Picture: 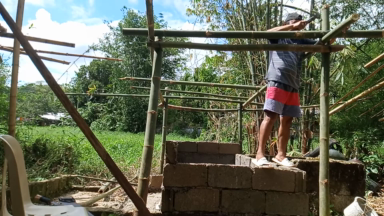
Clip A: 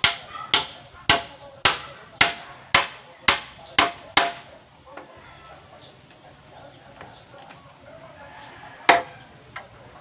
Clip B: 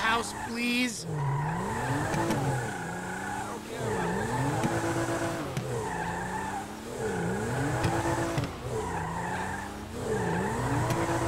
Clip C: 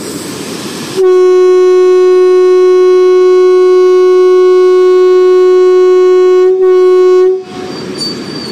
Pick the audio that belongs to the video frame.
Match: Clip A